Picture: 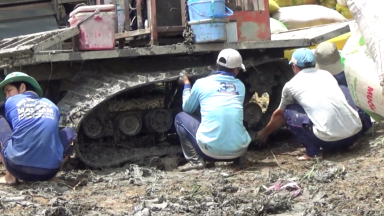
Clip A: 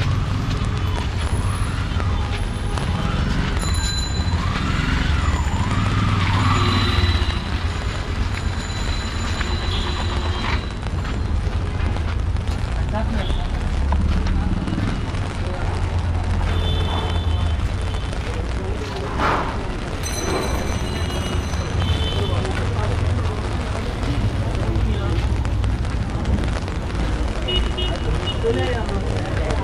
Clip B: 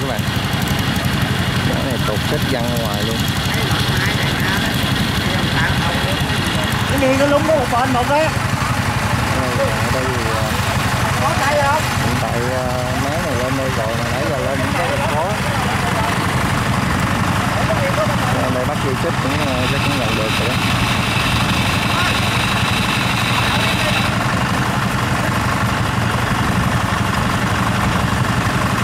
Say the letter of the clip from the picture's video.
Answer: B